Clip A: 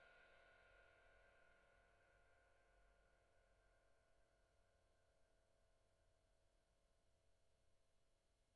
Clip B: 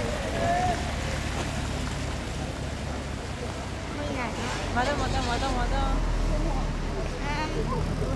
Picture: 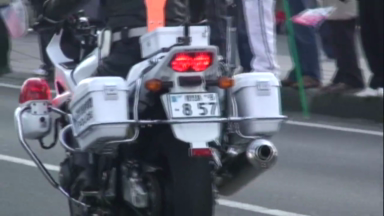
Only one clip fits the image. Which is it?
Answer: B